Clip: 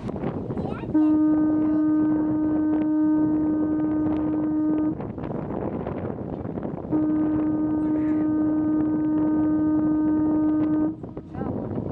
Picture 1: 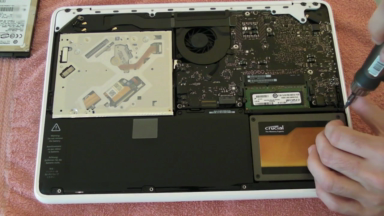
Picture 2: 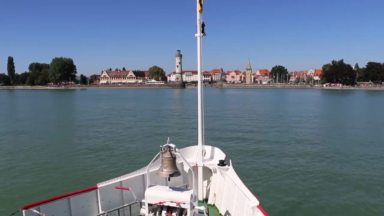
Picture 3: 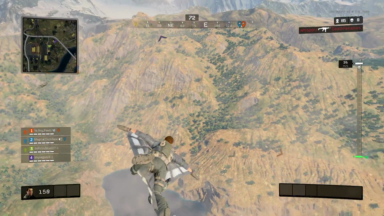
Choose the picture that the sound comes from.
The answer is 2